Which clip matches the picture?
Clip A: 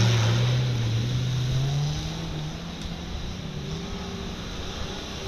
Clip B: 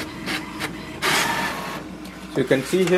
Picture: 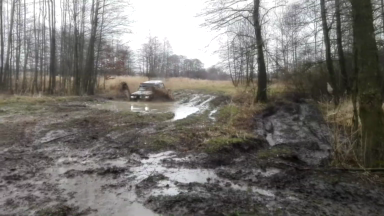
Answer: A